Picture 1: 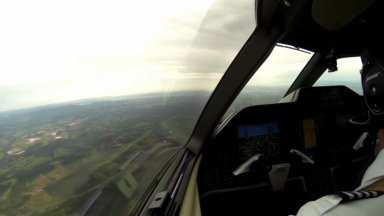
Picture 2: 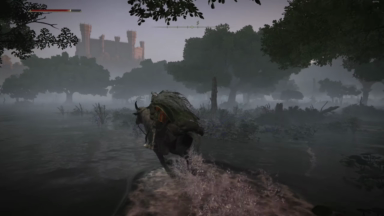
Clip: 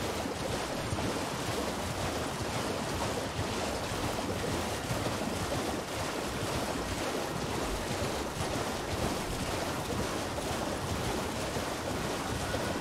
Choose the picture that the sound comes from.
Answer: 2